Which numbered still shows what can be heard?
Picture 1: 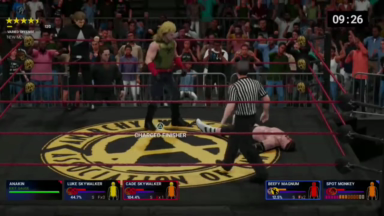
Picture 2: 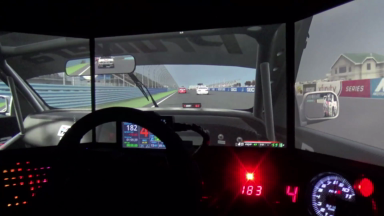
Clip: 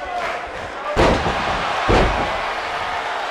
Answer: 1